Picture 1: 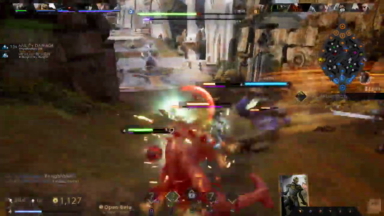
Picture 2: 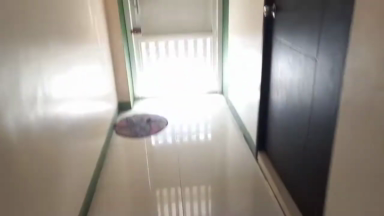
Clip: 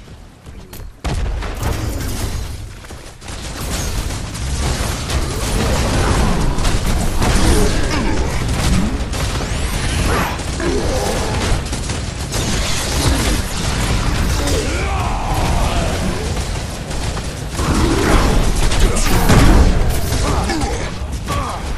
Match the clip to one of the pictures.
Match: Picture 1